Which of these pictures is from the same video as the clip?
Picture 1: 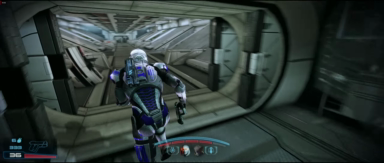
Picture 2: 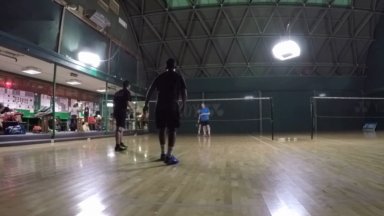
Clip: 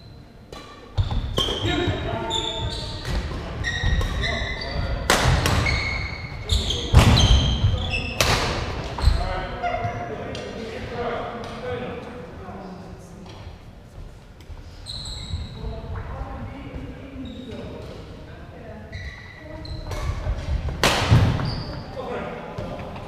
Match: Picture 2